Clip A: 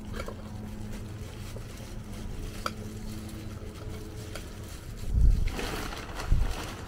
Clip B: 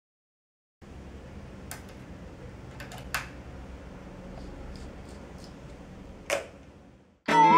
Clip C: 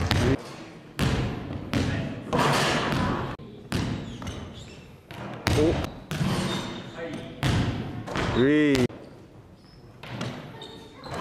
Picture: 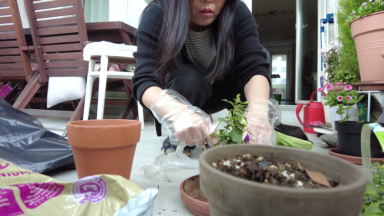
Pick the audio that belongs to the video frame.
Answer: A